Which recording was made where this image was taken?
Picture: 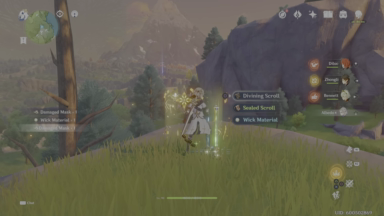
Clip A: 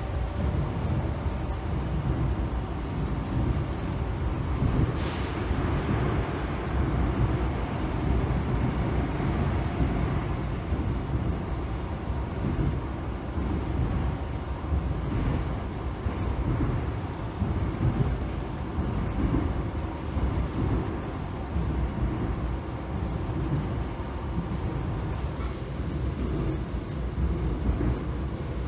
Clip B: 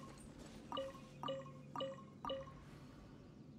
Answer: B